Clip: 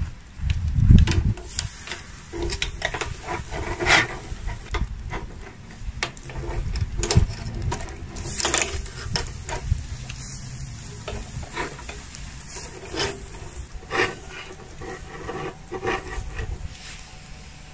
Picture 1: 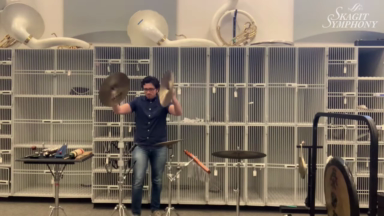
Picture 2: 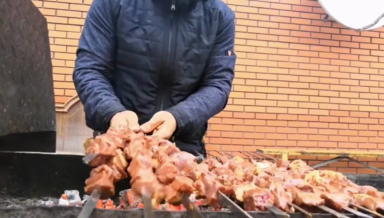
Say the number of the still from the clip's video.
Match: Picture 2